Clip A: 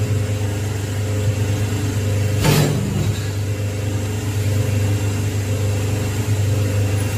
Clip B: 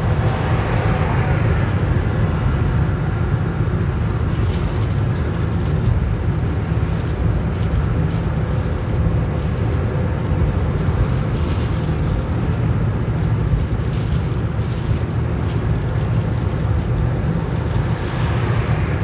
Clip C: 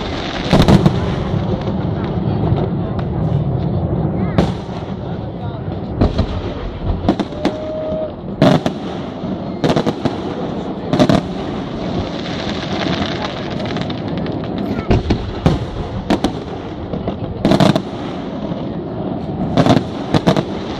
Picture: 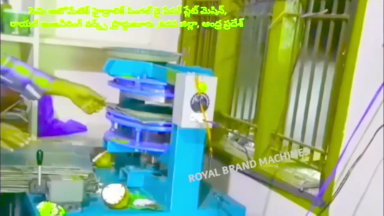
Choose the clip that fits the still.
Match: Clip A